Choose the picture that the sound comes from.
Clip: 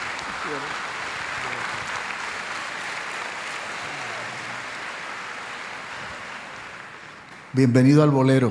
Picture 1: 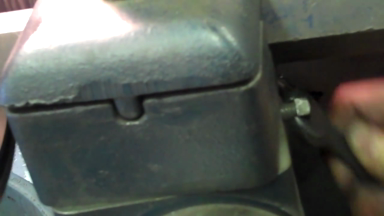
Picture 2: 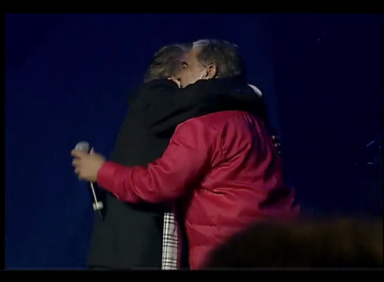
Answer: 2